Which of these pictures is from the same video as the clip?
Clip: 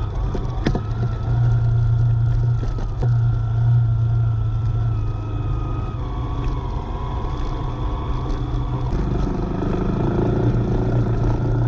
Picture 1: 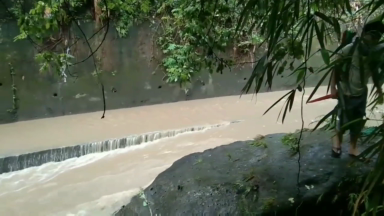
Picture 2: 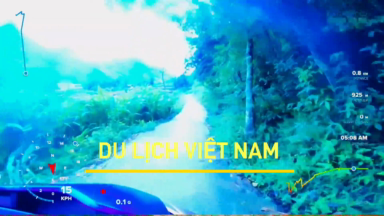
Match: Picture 2